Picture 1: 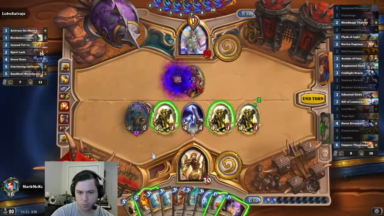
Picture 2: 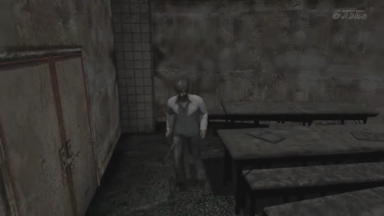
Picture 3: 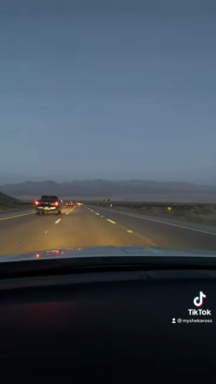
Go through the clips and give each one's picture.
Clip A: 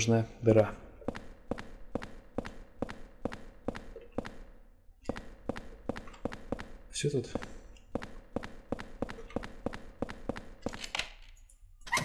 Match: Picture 2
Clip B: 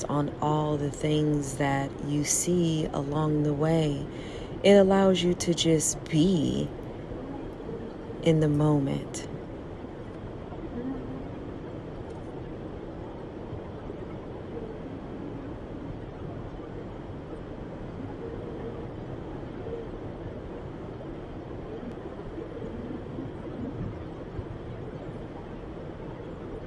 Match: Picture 3